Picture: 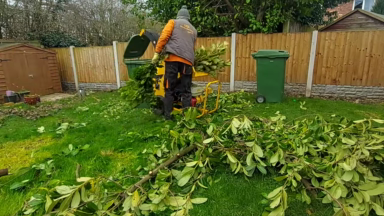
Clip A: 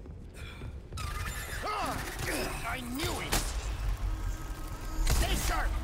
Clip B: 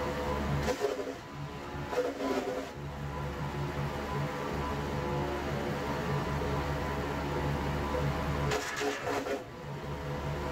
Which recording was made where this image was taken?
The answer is B